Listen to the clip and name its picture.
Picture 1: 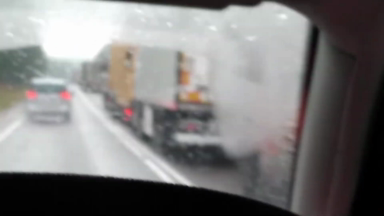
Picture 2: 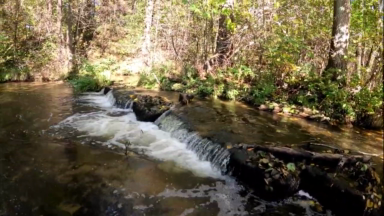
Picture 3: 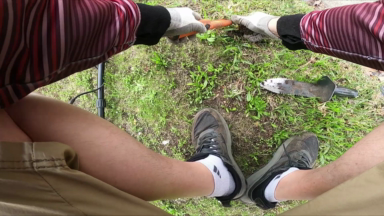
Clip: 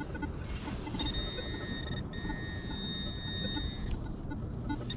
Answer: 3